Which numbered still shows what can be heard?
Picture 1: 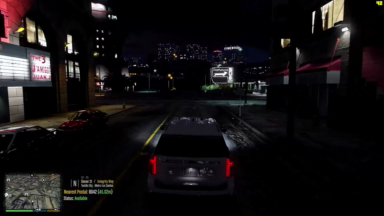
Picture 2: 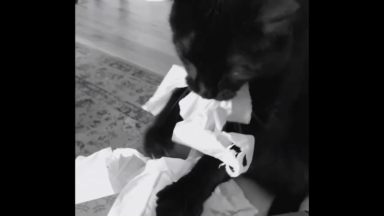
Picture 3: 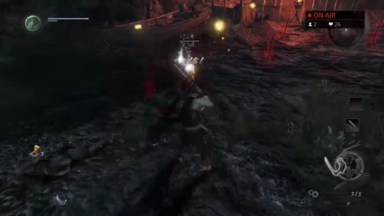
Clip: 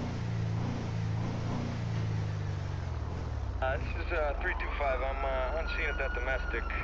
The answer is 1